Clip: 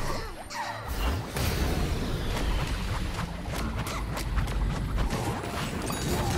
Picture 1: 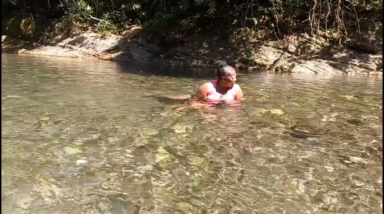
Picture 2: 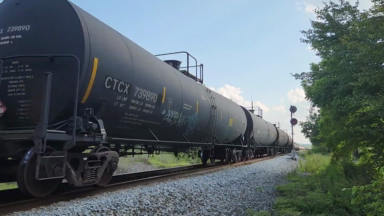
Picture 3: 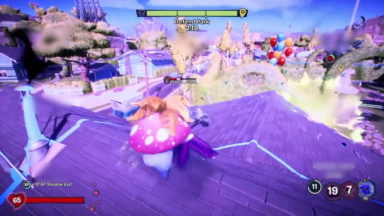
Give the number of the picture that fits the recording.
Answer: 3